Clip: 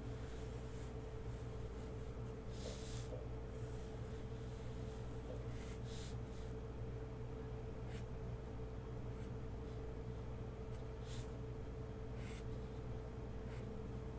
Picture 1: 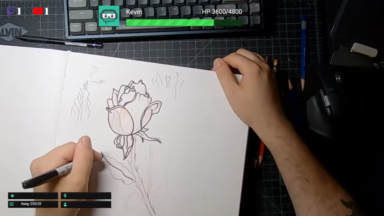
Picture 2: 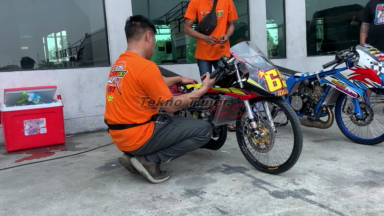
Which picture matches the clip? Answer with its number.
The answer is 1